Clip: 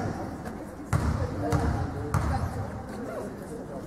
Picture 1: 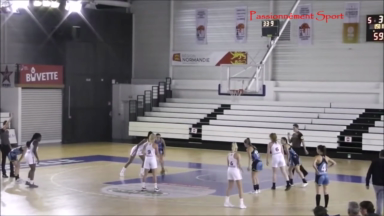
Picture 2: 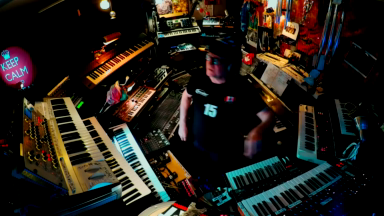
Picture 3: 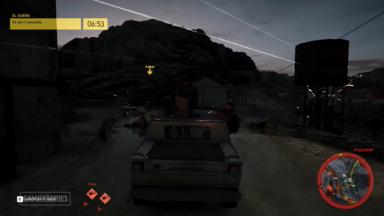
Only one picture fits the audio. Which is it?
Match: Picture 1